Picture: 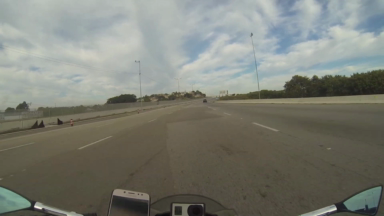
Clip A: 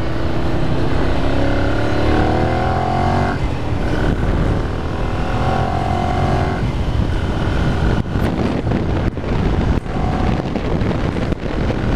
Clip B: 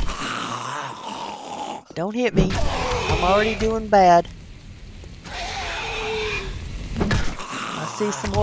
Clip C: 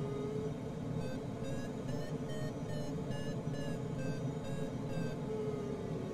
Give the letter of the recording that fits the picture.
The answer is A